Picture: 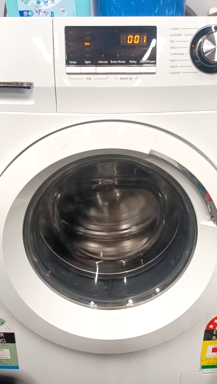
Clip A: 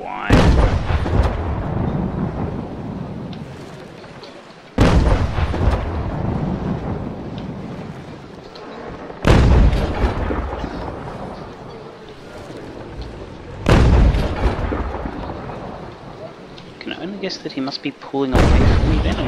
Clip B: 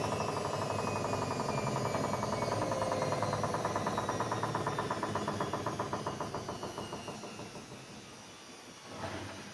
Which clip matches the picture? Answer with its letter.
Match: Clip B